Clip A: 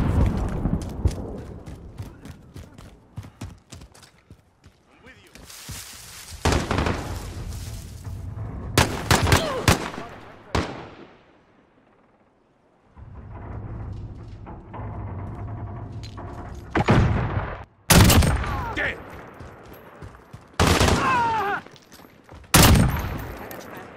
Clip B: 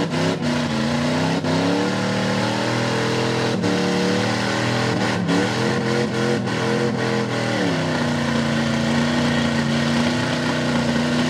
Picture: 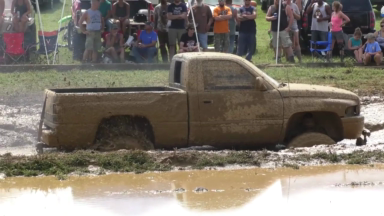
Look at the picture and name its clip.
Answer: B